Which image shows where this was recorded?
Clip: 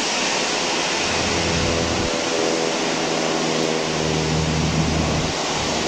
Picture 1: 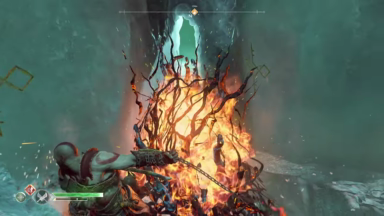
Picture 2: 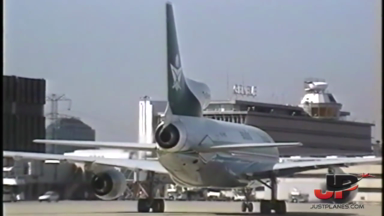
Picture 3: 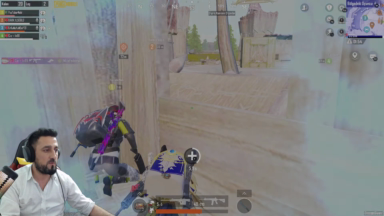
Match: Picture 2